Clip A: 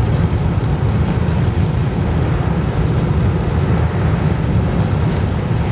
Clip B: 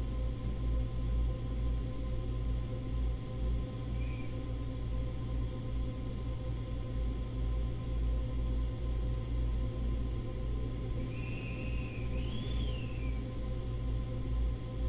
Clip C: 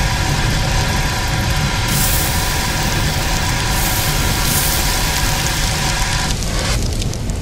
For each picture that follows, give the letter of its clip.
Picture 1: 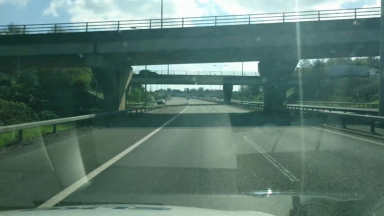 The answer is A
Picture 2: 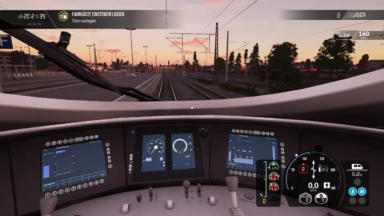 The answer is B